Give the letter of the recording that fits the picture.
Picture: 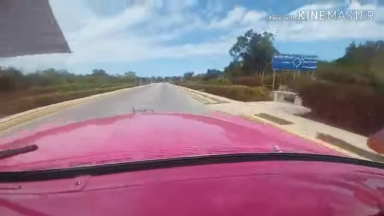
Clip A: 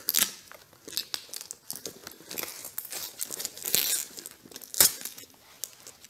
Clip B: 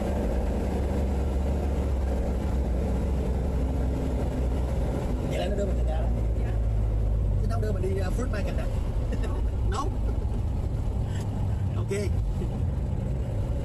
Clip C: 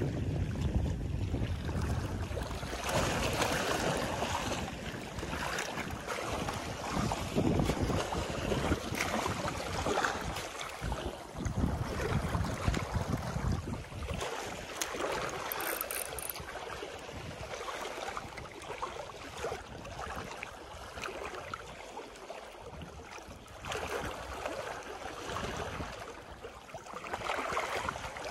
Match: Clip B